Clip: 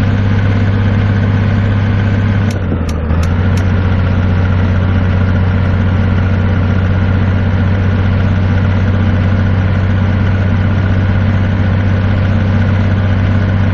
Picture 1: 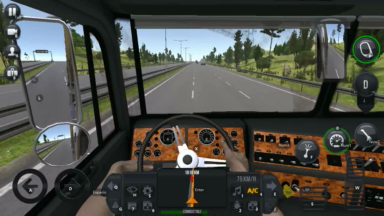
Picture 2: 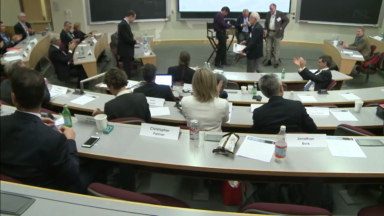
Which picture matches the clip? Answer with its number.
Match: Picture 1